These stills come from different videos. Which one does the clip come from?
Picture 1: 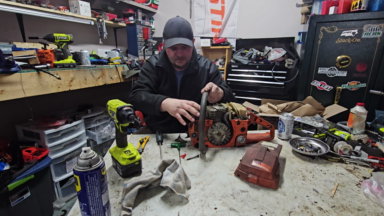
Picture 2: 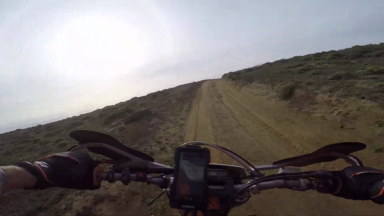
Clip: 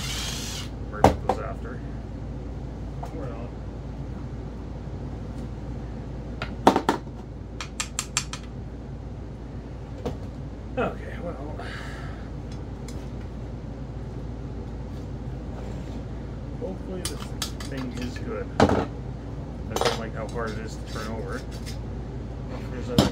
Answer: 1